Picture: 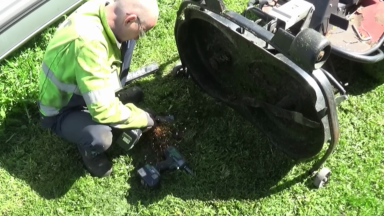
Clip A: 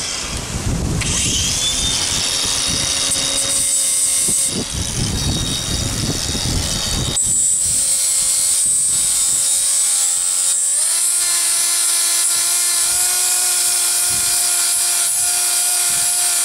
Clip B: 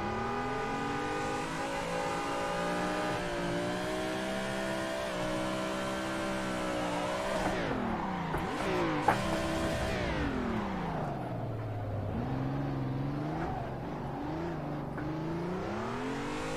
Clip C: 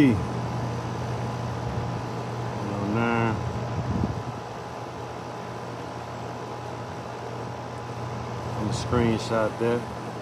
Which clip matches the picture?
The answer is A